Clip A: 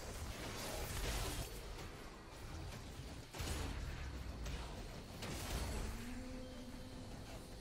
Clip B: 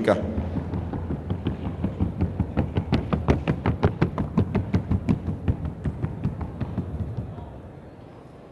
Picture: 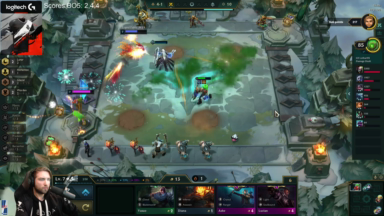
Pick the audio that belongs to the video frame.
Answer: A